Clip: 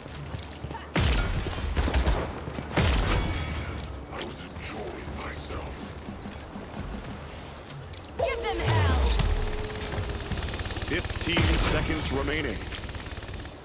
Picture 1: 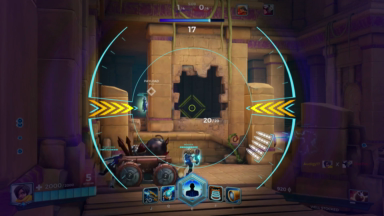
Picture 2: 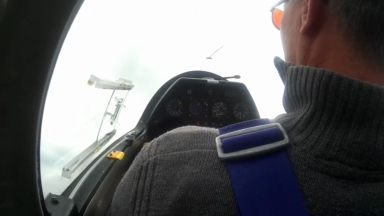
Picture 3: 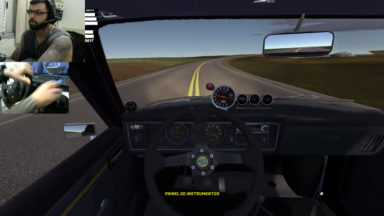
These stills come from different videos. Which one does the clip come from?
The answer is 1